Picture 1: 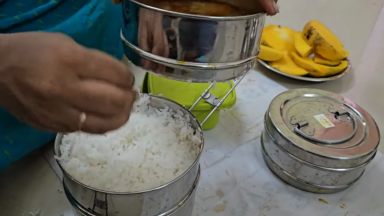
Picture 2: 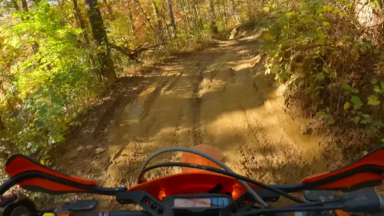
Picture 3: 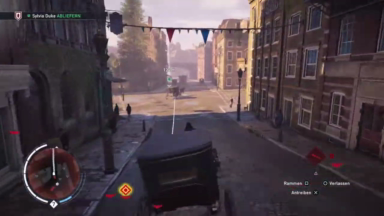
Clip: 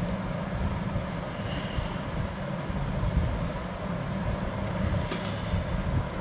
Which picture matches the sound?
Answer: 1